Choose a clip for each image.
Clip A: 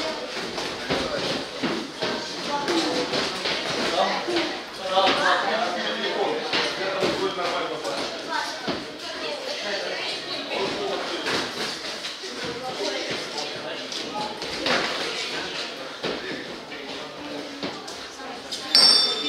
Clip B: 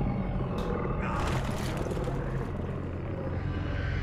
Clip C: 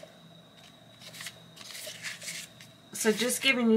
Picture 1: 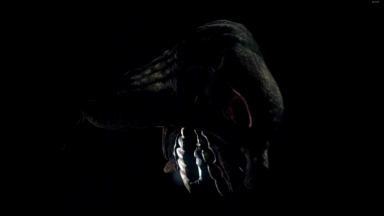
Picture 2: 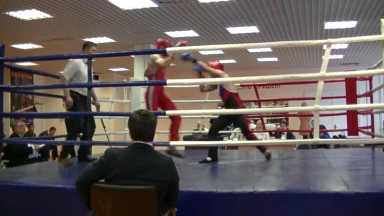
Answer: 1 B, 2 A